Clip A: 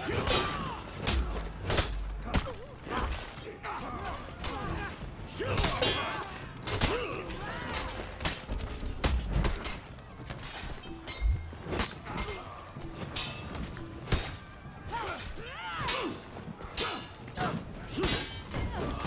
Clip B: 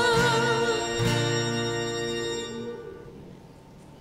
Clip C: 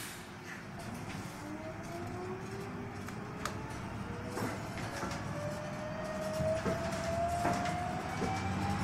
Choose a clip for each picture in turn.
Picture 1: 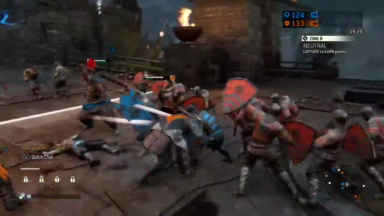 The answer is A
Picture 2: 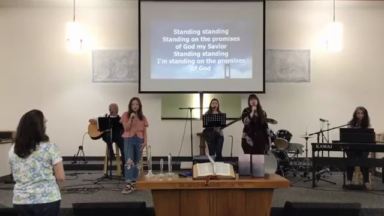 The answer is B